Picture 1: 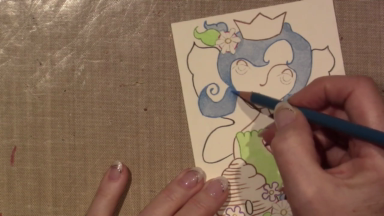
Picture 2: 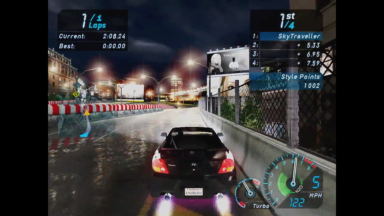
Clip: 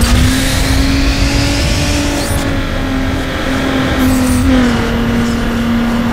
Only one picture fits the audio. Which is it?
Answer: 2